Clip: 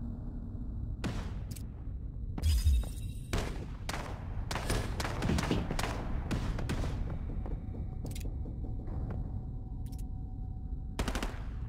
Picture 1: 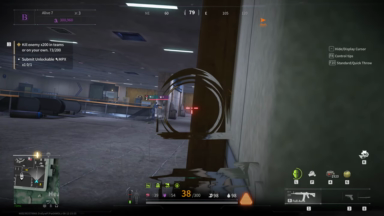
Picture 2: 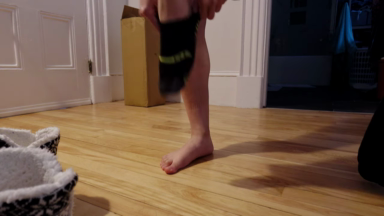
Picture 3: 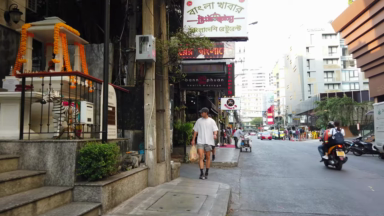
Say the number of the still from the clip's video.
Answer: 1